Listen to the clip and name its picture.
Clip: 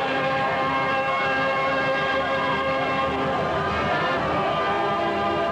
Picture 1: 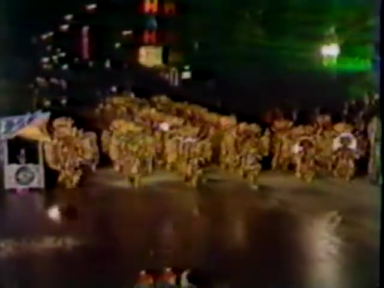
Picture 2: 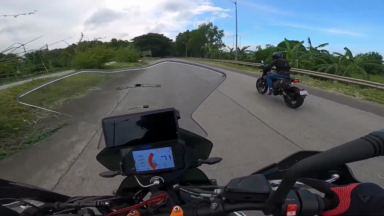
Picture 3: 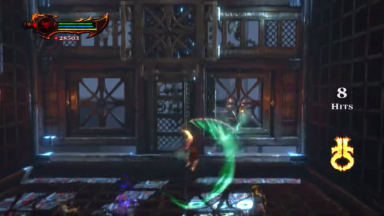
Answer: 1